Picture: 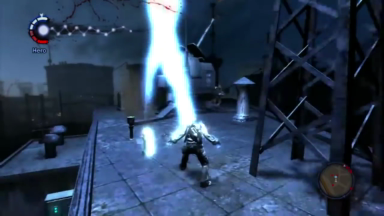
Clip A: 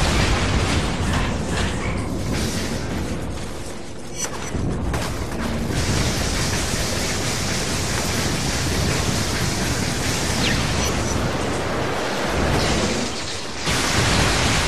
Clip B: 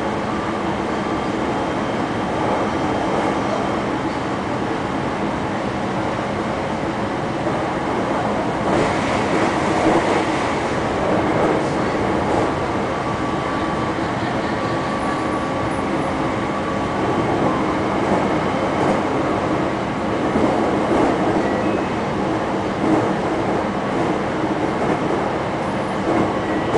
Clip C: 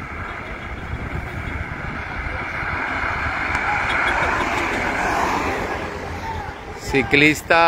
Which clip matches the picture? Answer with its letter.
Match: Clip A